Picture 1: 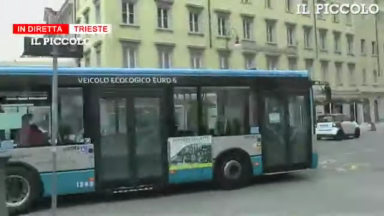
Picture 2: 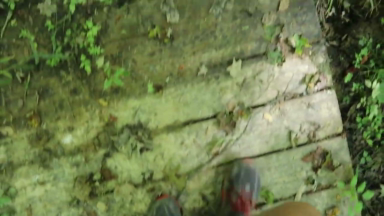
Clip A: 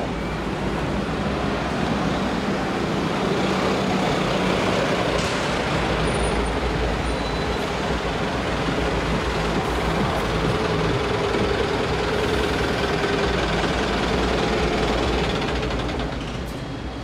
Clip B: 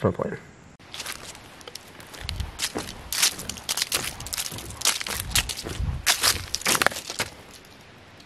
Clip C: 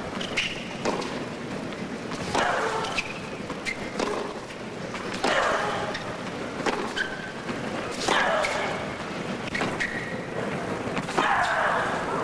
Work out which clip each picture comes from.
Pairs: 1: A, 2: B